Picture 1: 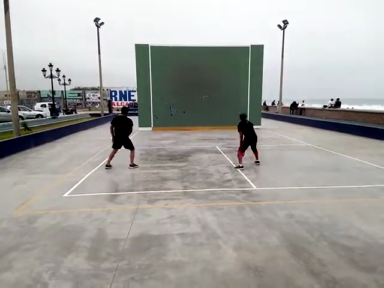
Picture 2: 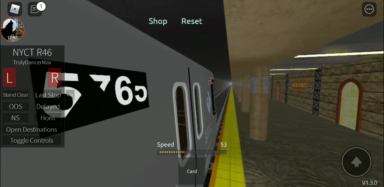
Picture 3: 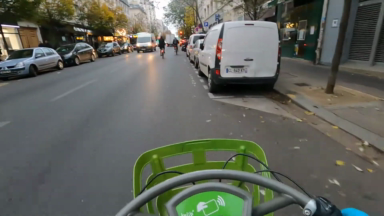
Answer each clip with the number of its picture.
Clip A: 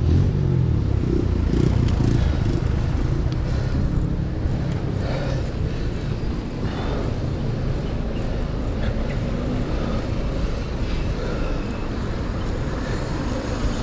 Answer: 3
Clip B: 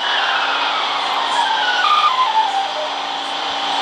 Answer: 2